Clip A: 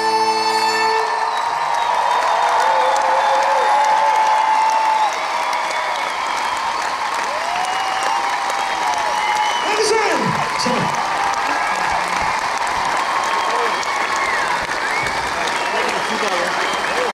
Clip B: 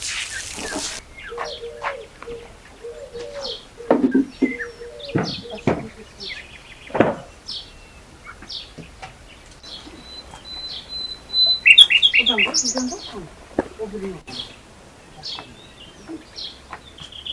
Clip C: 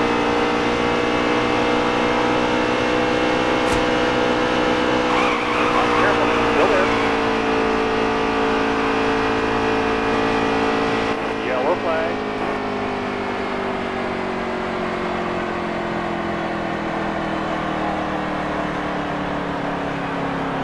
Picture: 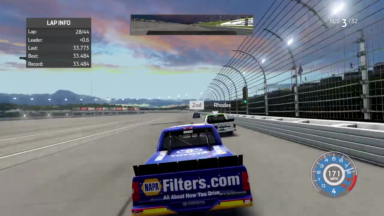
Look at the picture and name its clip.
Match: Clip C